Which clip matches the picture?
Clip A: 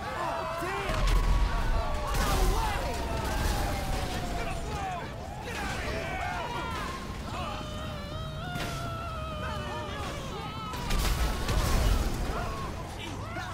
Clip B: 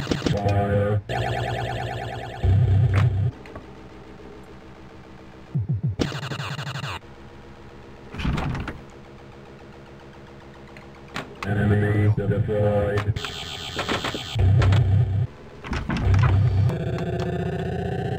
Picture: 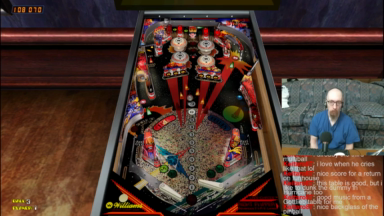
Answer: B